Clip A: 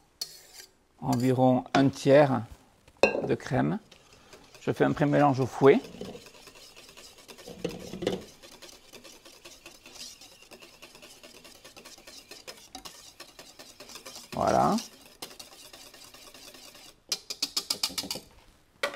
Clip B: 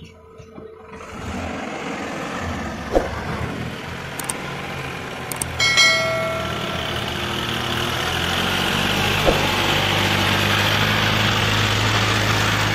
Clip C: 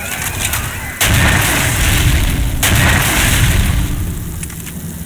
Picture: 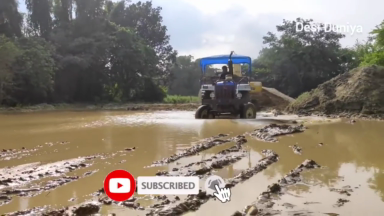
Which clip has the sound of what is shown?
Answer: B